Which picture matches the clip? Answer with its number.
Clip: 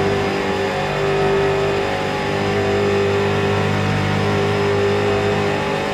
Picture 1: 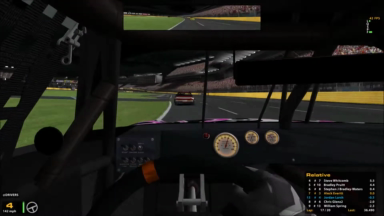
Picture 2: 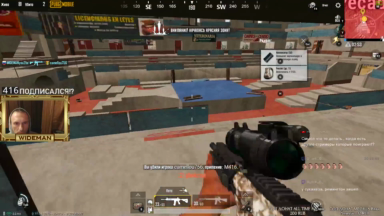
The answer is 1